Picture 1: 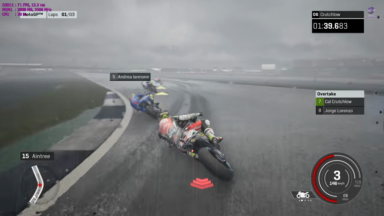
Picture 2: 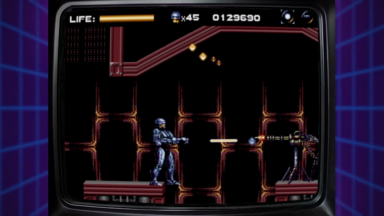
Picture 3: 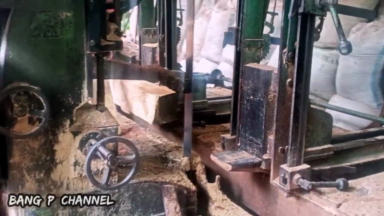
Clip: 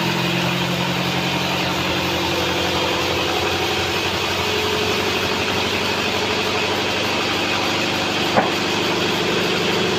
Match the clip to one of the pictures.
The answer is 3